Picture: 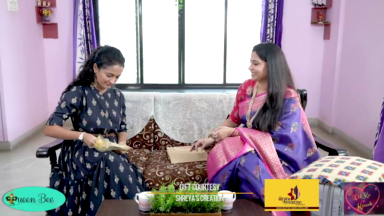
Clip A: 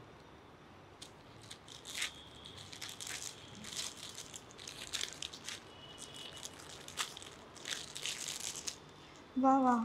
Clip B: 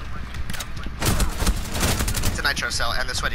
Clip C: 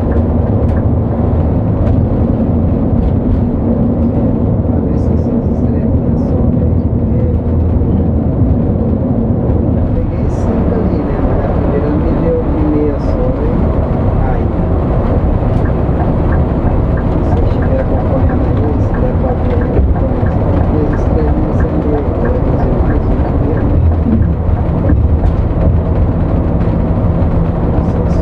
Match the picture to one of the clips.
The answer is A